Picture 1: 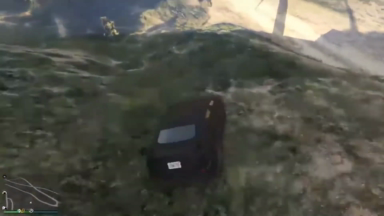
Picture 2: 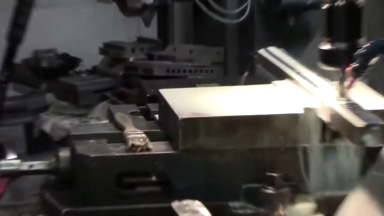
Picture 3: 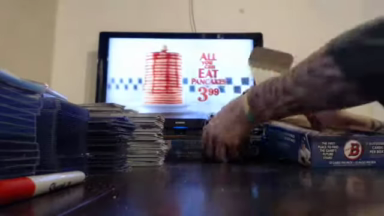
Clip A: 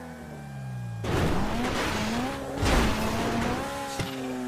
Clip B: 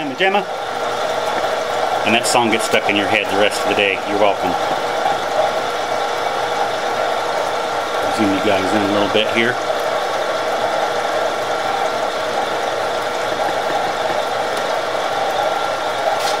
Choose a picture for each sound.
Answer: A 1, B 2